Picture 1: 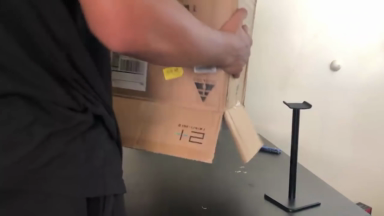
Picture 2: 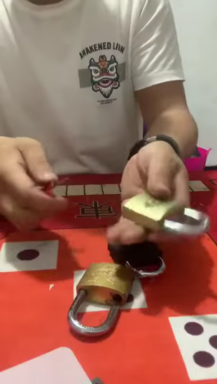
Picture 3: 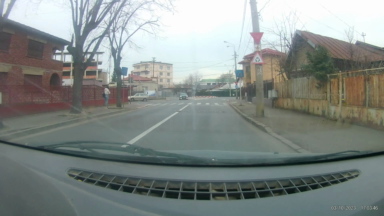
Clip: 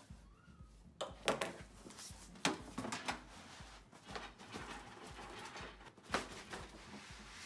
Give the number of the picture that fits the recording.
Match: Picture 1